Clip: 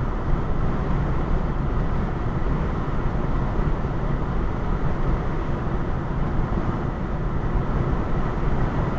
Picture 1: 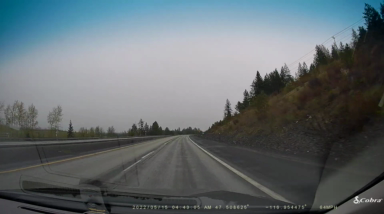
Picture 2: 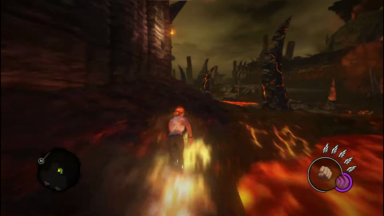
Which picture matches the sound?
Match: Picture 1